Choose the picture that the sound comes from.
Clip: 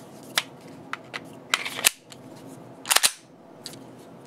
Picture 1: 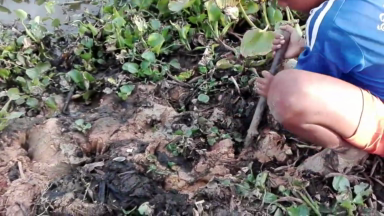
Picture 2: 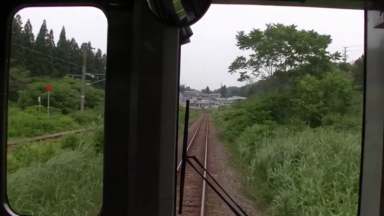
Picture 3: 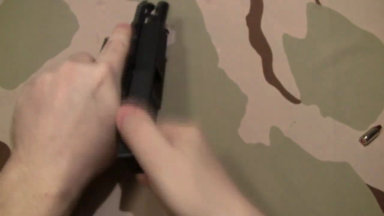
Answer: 3